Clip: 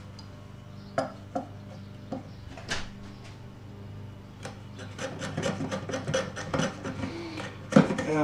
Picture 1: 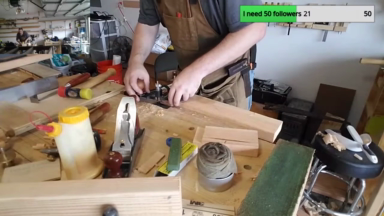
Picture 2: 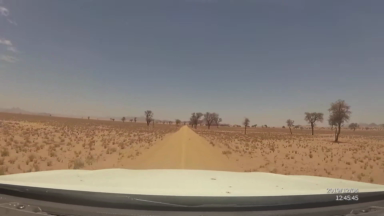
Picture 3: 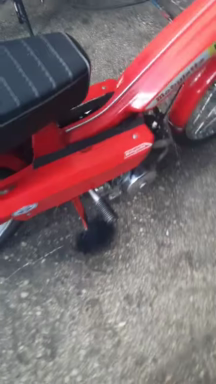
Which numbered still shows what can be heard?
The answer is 1